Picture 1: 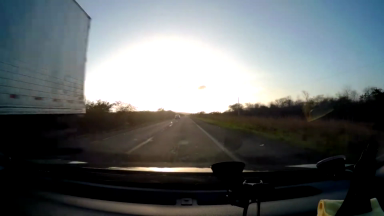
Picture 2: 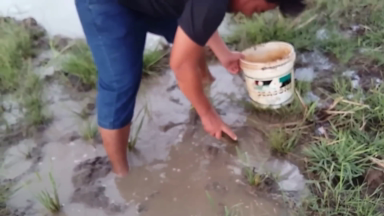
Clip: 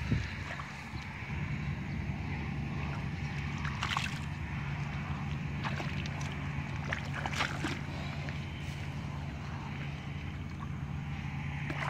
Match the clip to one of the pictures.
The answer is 2